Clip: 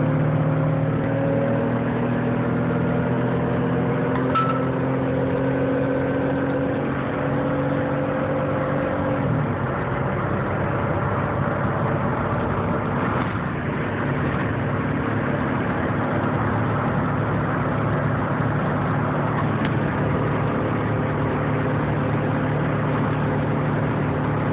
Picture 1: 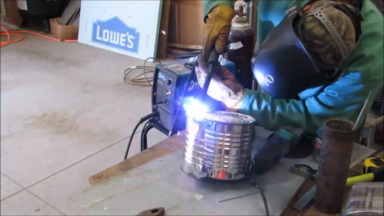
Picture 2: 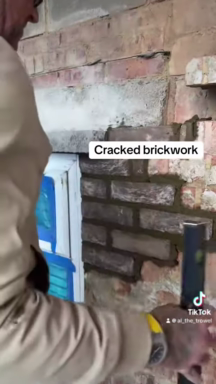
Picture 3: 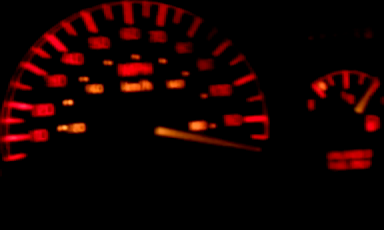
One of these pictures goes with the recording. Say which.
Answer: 3